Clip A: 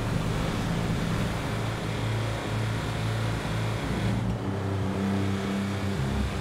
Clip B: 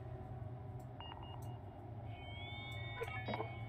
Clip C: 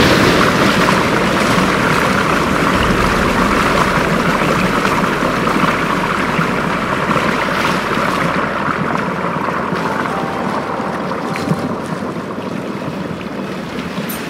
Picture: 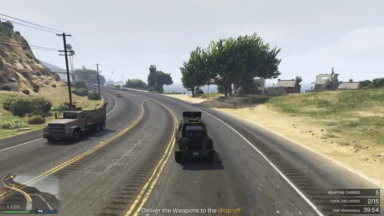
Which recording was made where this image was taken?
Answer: A